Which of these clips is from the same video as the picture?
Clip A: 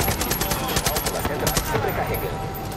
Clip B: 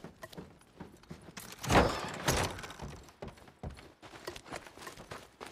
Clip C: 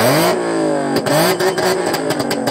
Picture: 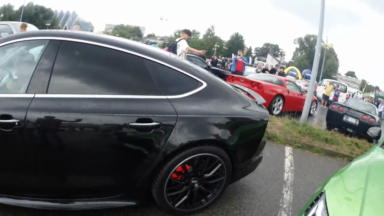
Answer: C